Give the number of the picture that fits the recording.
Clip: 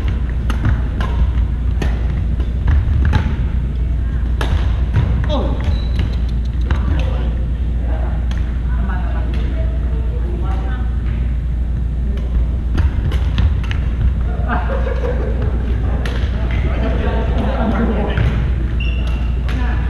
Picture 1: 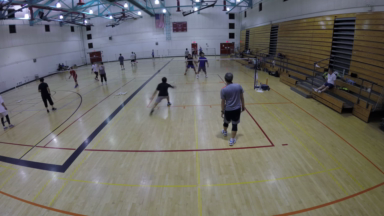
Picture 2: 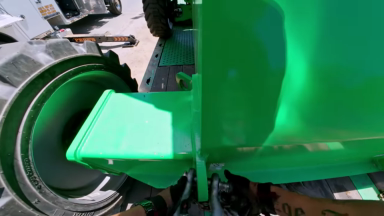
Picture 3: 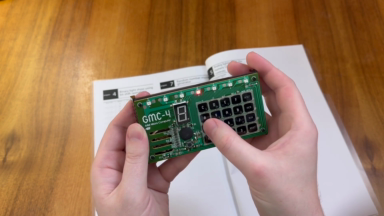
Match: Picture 1